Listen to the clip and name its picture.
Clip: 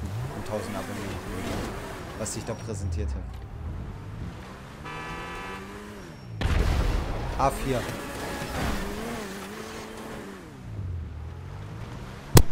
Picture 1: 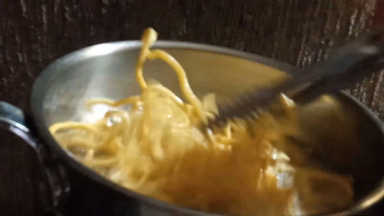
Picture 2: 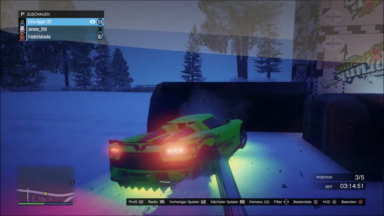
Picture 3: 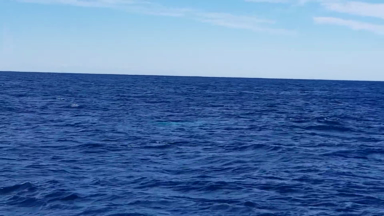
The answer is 2